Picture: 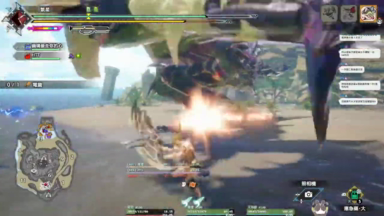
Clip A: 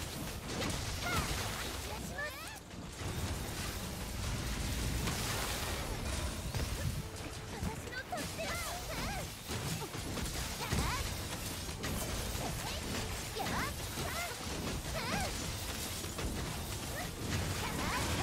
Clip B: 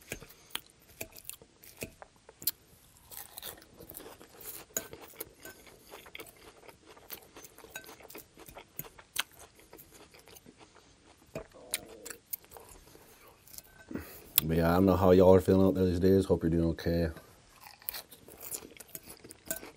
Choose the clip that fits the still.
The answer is A